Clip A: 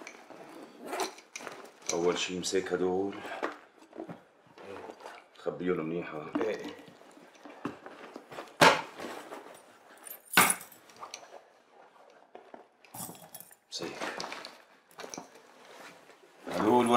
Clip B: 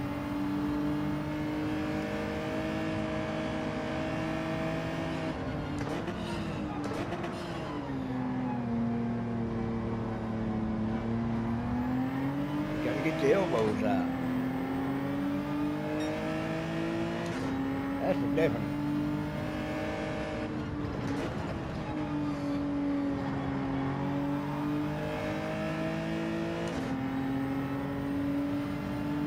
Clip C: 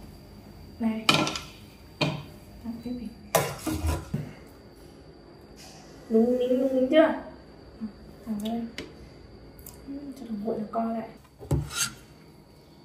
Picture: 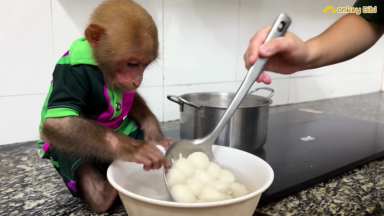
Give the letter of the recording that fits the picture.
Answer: C